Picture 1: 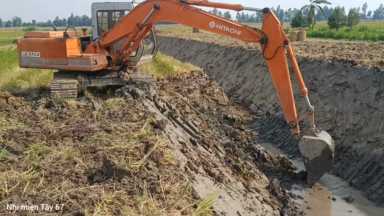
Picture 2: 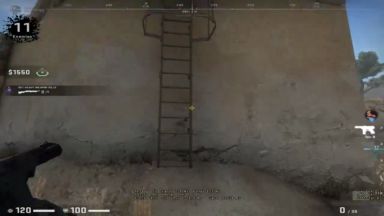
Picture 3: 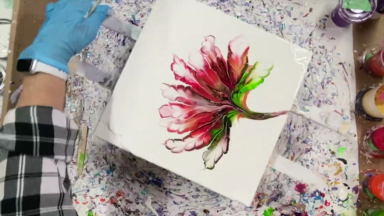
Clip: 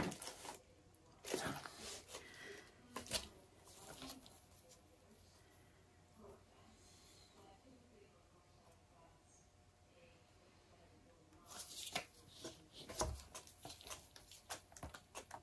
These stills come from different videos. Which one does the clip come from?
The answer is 3